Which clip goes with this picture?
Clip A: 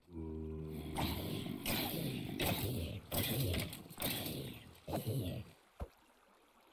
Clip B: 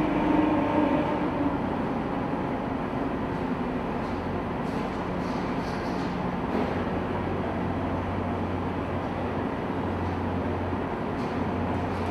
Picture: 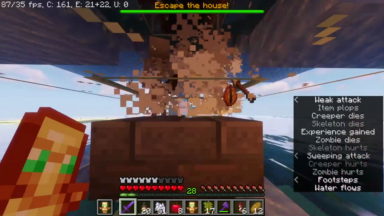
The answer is A